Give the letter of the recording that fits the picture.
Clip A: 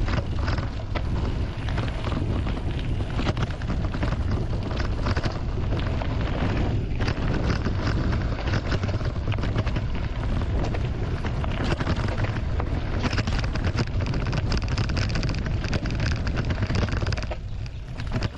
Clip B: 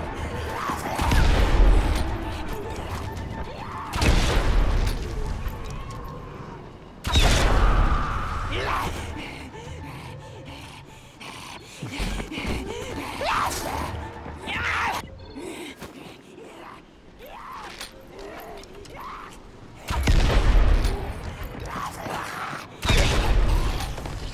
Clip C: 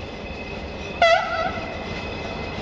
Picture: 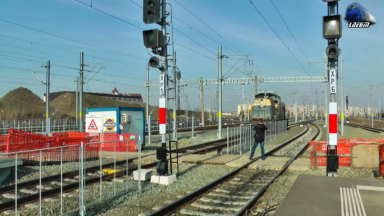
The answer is C